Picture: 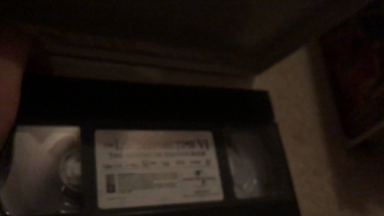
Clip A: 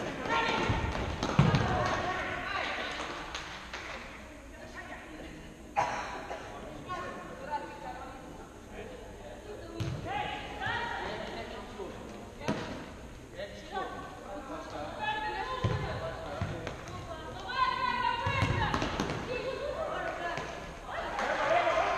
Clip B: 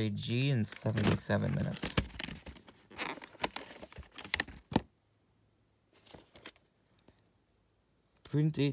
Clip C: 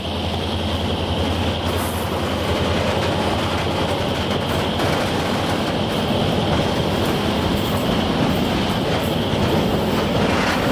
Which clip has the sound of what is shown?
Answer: B